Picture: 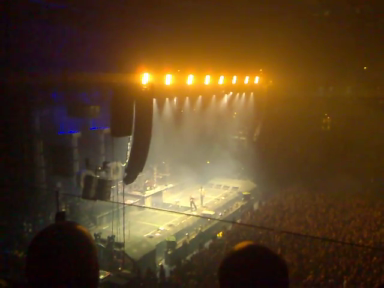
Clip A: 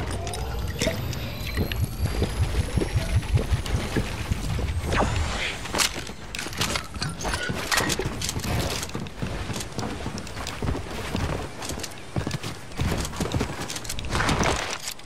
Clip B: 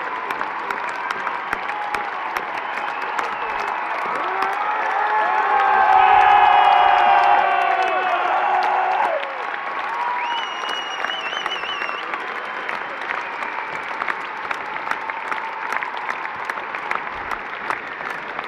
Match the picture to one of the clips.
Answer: B